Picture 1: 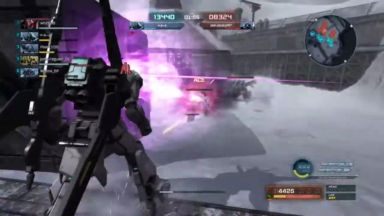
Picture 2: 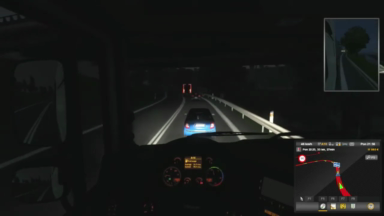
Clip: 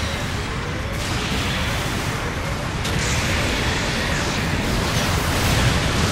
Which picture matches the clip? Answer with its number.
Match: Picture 1